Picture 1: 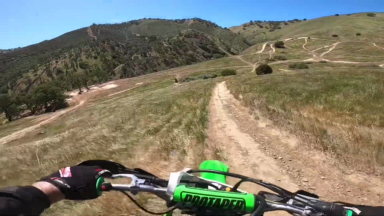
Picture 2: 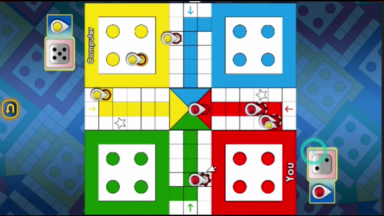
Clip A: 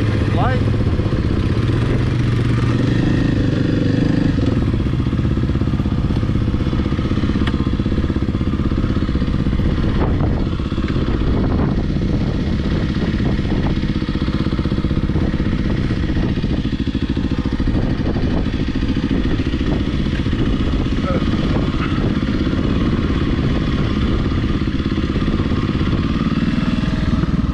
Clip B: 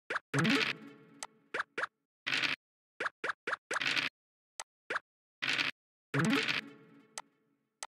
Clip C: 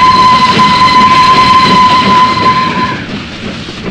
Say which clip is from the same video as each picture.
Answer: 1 A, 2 B